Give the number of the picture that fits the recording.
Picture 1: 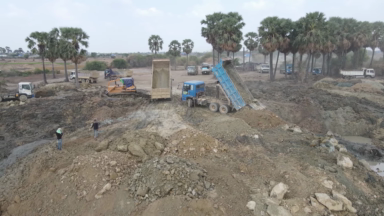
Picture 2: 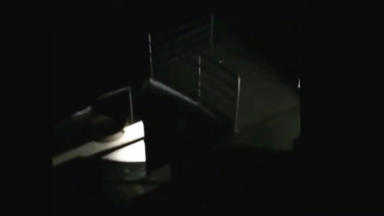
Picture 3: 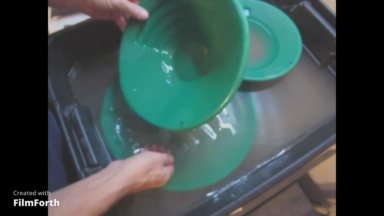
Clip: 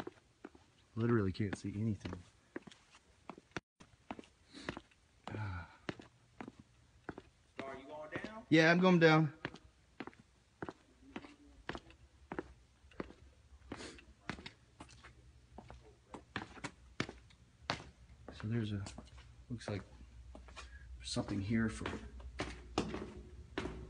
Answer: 2